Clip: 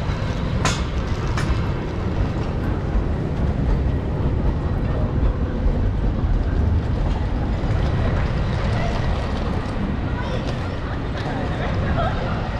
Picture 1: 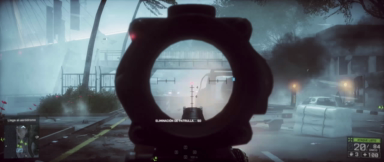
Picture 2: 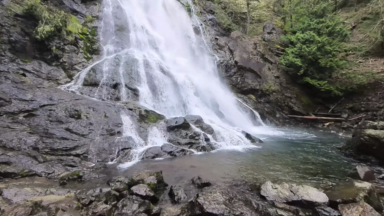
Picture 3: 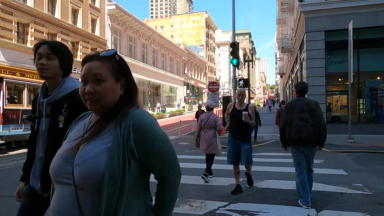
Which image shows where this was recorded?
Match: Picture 3